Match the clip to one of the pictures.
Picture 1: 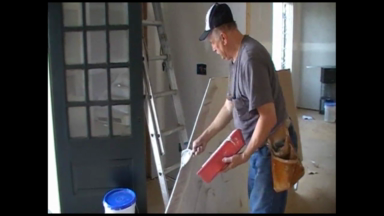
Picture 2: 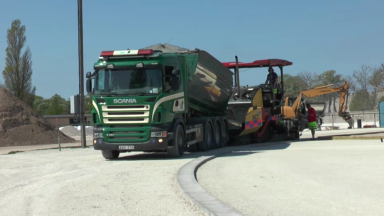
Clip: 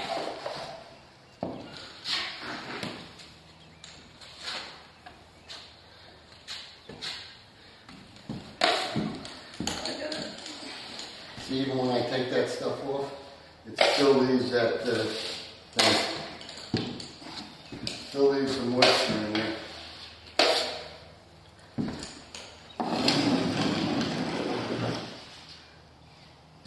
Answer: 1